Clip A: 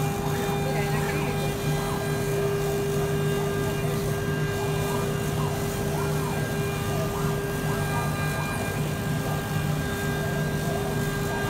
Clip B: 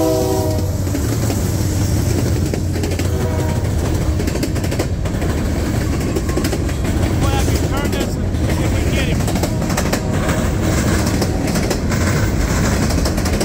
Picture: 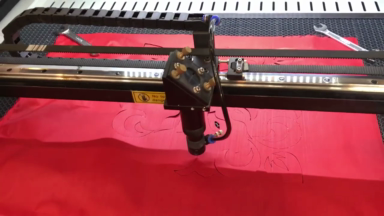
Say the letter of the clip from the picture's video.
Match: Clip A